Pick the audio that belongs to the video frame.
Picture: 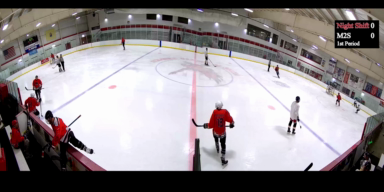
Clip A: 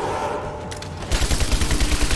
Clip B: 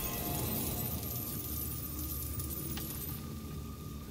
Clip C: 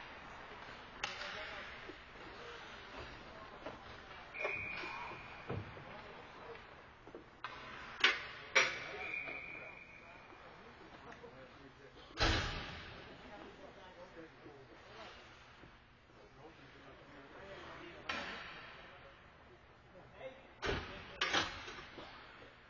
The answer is C